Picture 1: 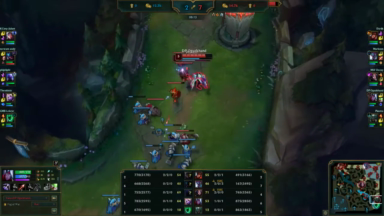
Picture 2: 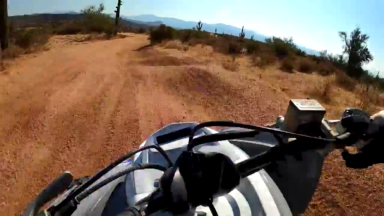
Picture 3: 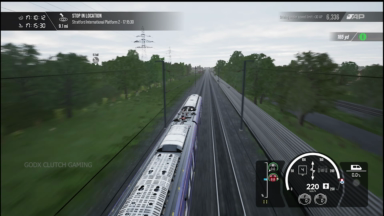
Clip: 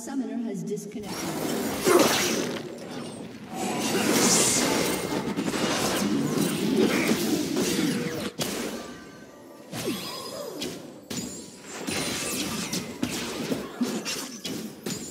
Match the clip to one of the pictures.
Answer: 1